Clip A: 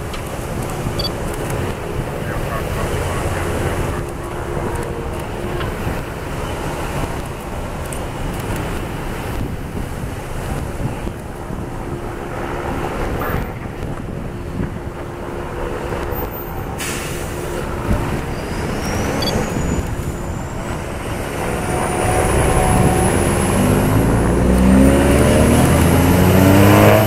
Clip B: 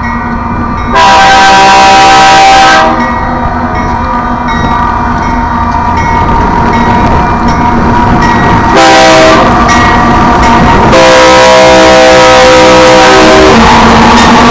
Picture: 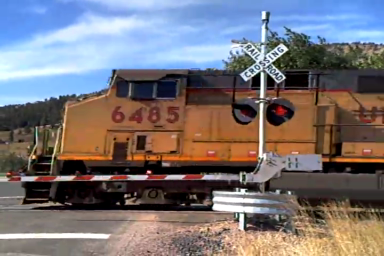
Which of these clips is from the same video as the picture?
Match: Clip B